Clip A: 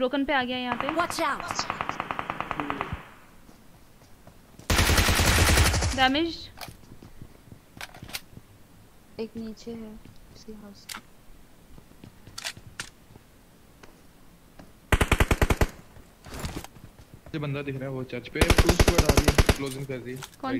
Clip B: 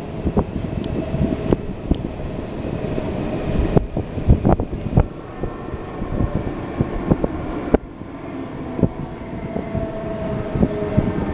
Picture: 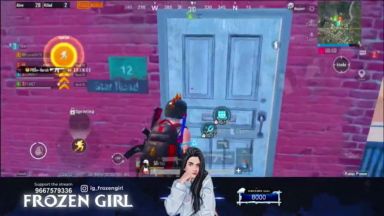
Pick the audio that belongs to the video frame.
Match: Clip A